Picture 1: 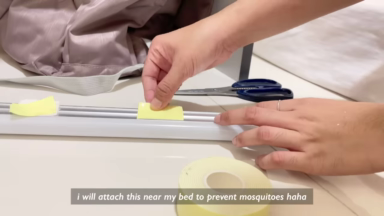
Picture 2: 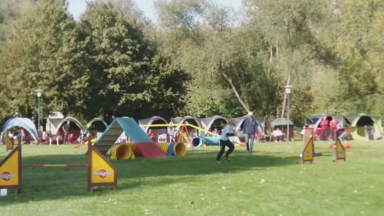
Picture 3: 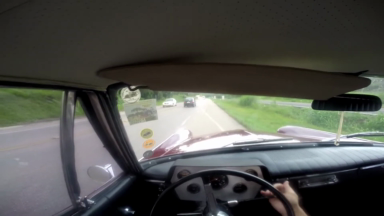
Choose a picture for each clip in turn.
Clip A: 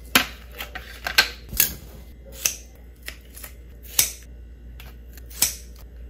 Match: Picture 1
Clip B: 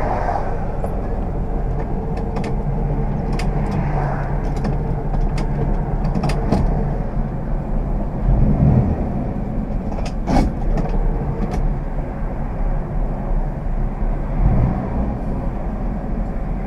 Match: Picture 3